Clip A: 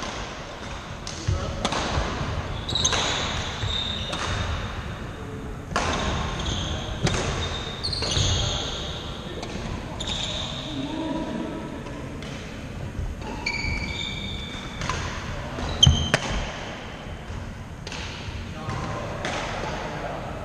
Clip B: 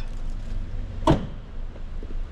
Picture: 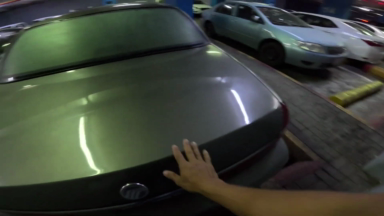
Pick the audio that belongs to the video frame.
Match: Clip B